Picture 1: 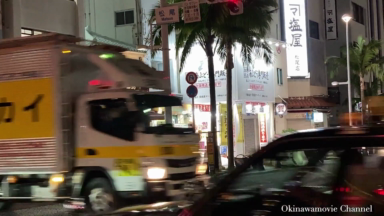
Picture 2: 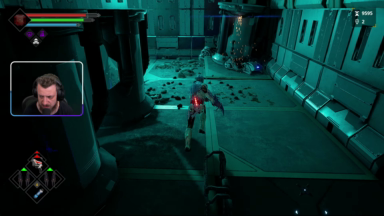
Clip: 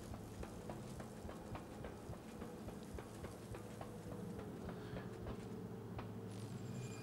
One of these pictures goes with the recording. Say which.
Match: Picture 2